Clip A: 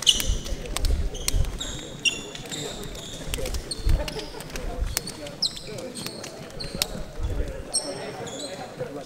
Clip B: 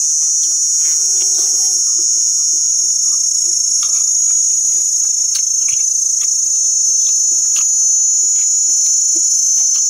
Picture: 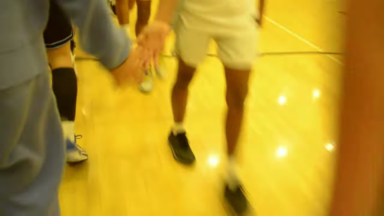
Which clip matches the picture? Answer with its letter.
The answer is A